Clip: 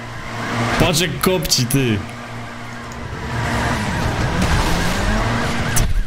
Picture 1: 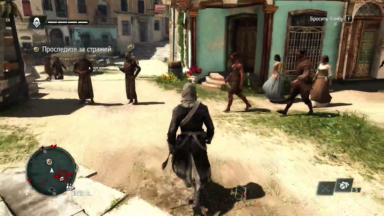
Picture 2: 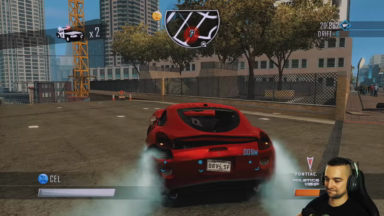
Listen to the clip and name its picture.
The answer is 2